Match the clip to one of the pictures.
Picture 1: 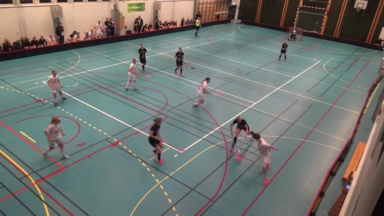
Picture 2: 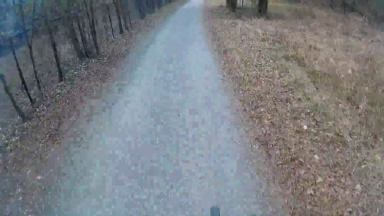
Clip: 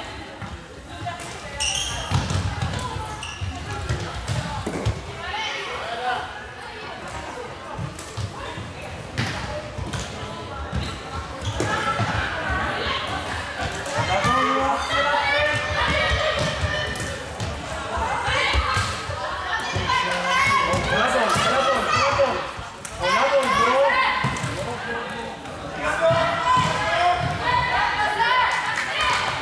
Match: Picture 1